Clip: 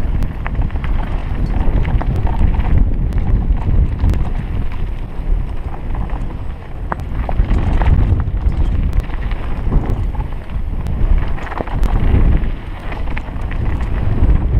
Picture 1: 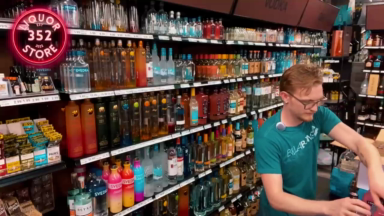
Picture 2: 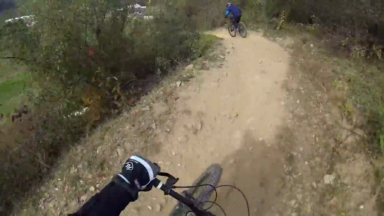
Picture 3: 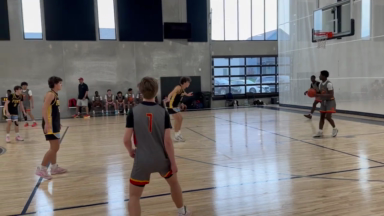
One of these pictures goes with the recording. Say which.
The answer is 2